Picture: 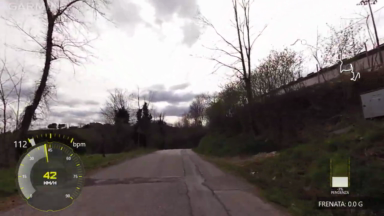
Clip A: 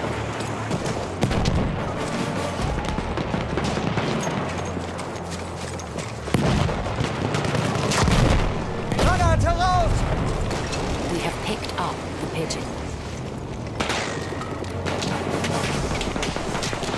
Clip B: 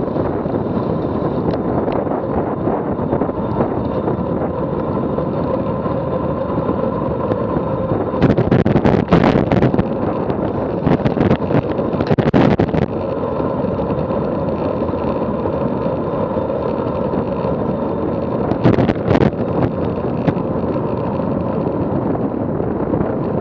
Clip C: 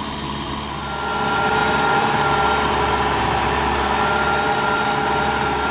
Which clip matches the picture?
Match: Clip B